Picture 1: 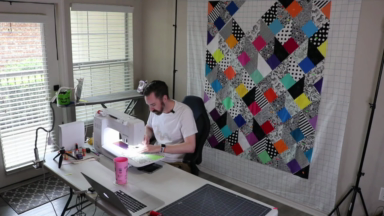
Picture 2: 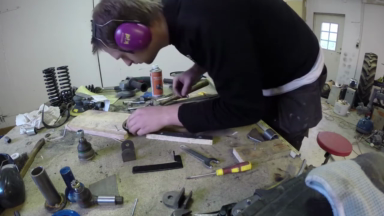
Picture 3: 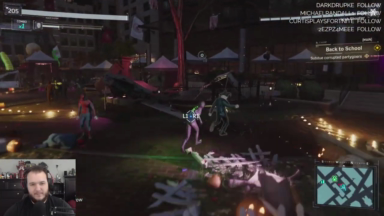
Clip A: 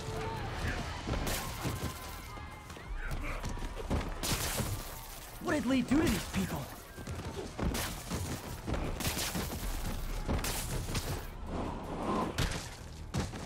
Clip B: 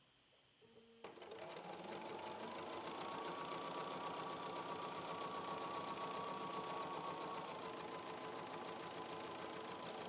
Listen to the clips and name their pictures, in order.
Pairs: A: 3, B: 1